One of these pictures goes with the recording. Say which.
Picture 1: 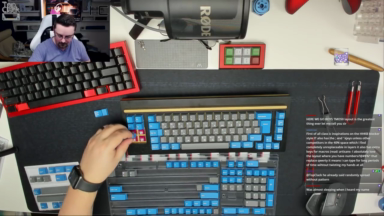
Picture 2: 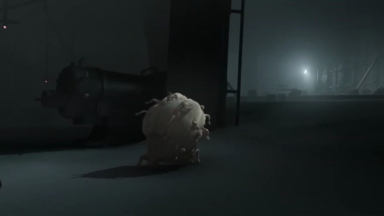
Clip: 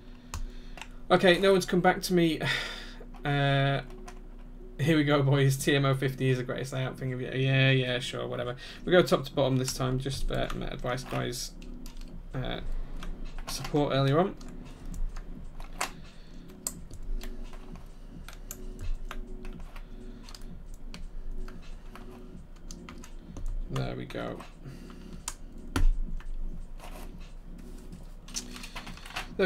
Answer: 1